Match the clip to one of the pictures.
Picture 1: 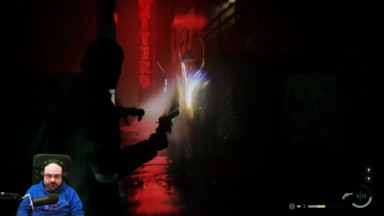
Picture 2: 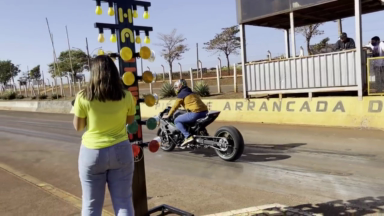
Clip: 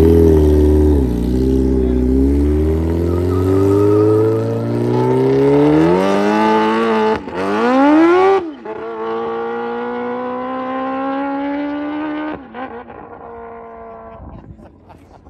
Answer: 2